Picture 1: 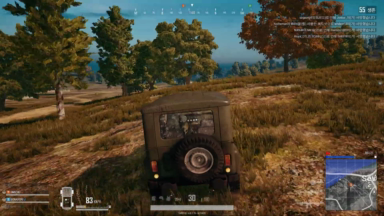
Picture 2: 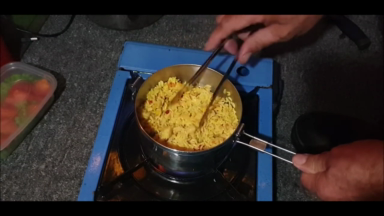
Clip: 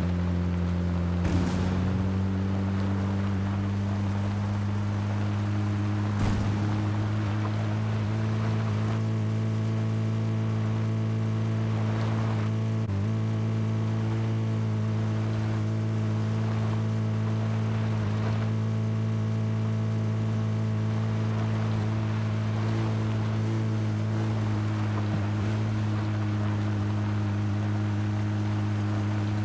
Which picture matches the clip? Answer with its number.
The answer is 1